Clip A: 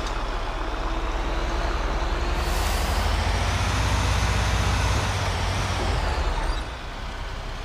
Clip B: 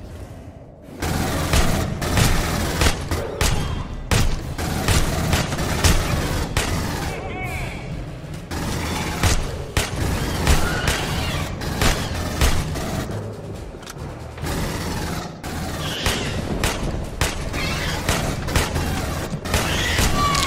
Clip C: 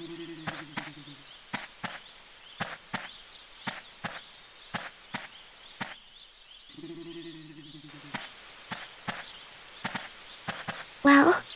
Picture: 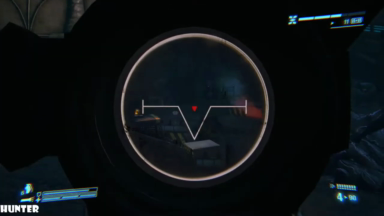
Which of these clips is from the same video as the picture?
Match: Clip B